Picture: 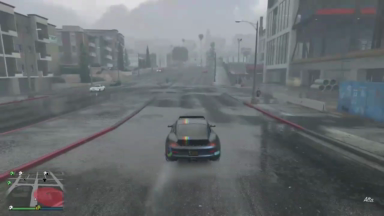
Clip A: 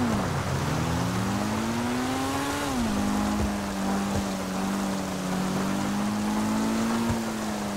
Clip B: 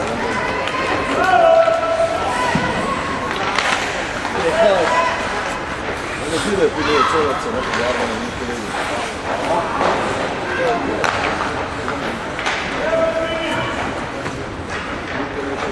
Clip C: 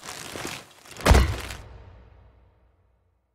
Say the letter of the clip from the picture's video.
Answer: A